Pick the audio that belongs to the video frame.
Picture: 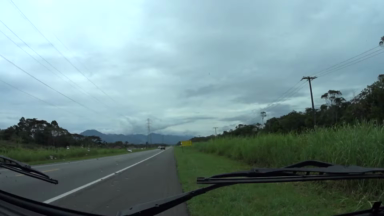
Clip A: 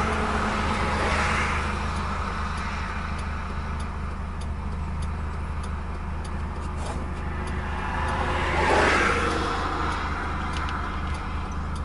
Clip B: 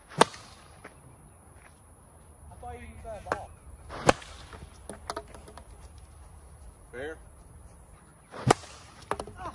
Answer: A